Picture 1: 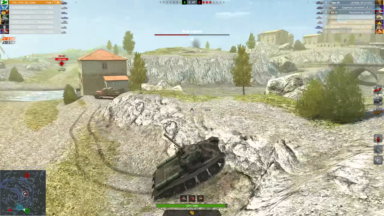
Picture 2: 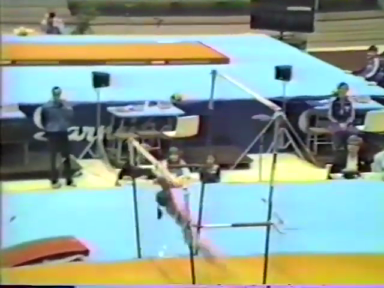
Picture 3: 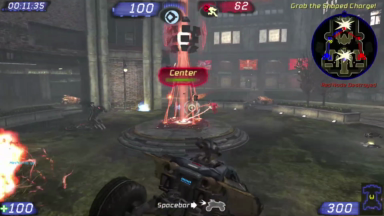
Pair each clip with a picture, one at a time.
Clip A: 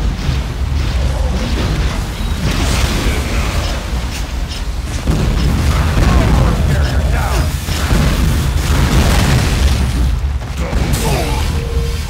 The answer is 3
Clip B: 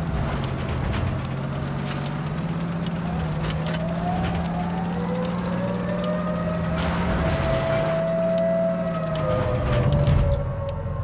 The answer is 1